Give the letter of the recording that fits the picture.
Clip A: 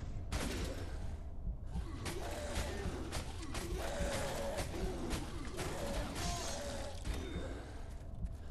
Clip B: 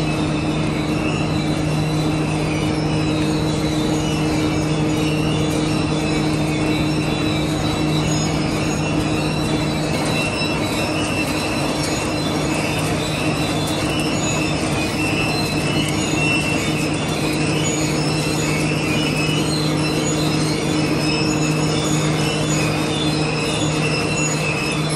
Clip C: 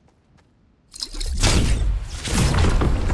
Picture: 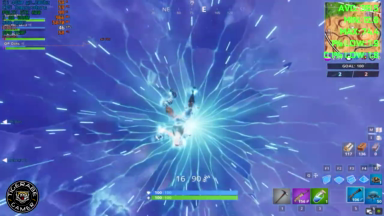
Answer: C